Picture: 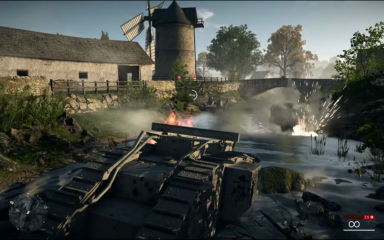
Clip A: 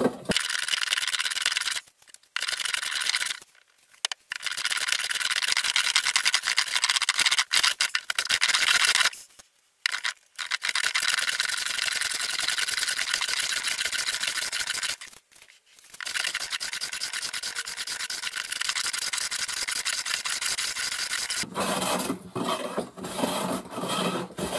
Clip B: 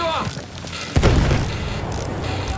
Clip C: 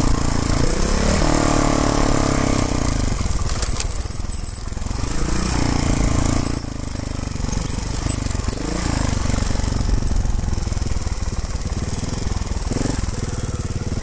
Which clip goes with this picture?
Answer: B